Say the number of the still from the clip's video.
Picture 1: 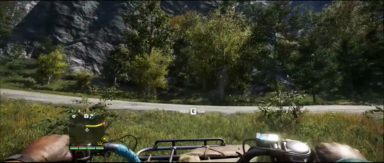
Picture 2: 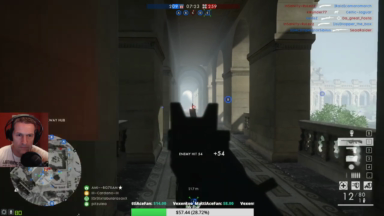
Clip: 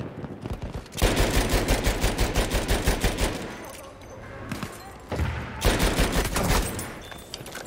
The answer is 2